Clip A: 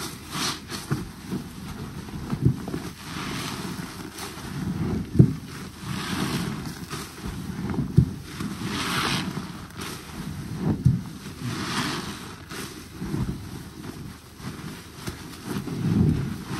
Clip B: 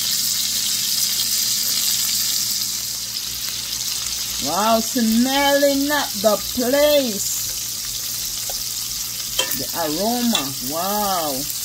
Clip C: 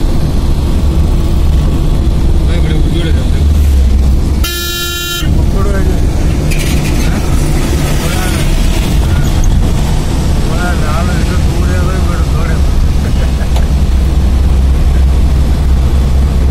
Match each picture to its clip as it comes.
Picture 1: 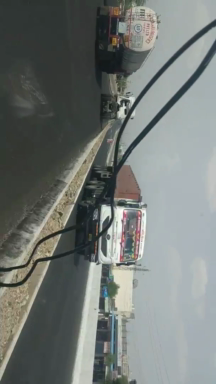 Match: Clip C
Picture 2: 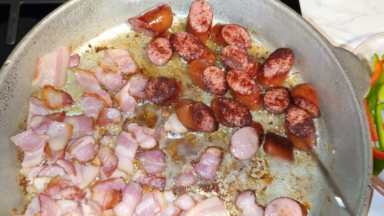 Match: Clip B